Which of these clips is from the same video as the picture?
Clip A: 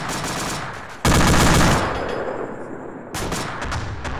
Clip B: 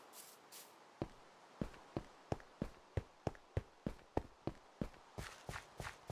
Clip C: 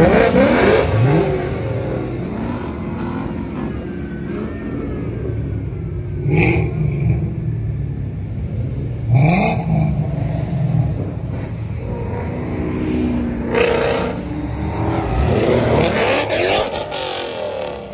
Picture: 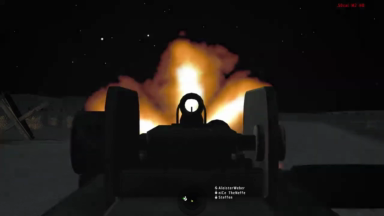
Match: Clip A